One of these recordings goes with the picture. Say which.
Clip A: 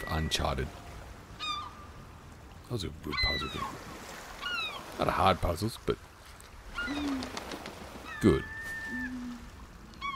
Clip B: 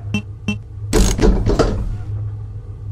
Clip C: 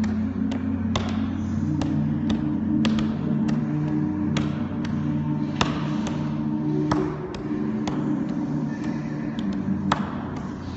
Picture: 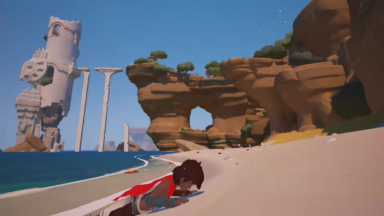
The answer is A